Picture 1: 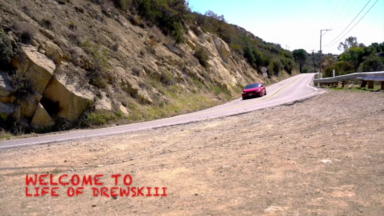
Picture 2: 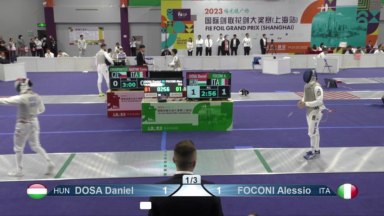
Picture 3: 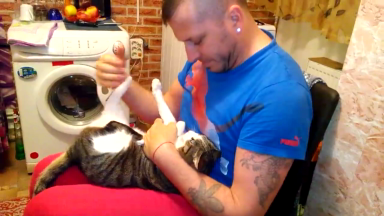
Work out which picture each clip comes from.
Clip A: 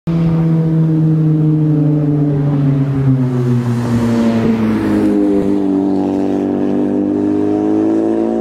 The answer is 1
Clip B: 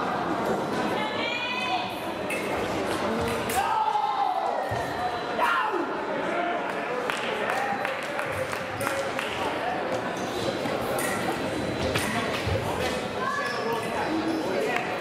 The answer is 2